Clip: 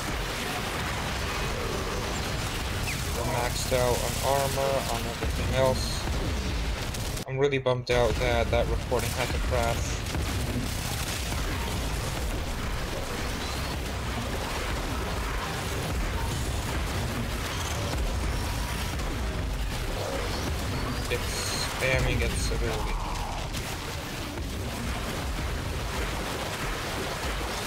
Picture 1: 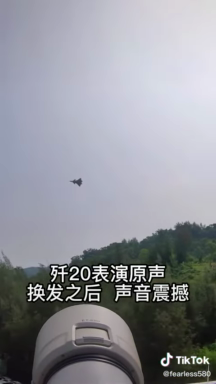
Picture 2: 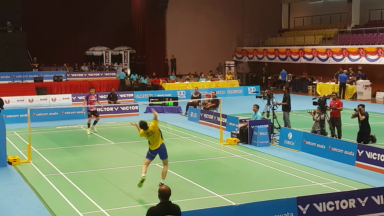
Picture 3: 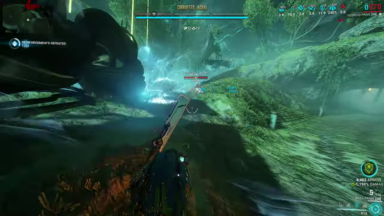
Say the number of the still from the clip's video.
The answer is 3